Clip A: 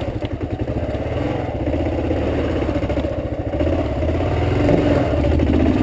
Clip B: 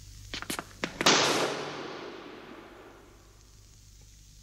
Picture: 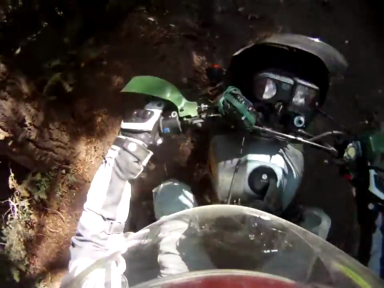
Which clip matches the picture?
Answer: A